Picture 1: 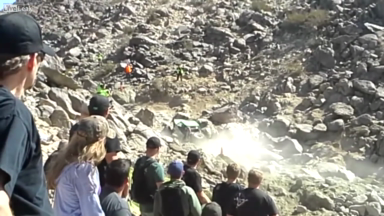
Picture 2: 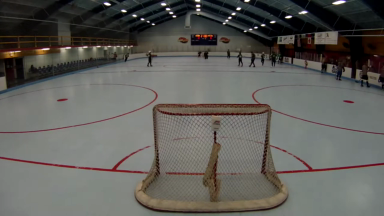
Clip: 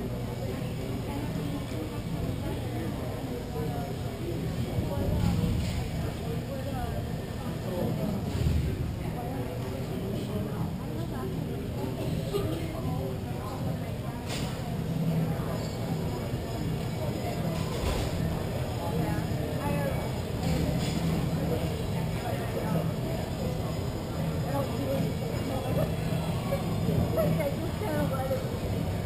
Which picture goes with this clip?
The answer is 2